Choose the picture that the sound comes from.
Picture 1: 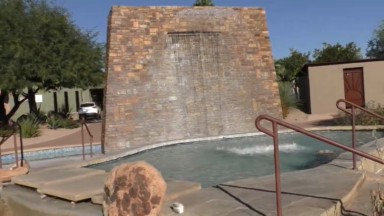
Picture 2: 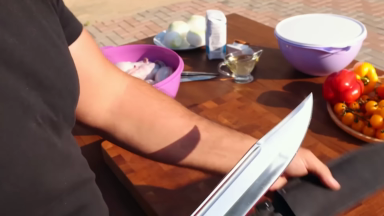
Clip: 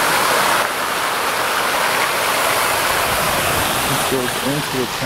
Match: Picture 1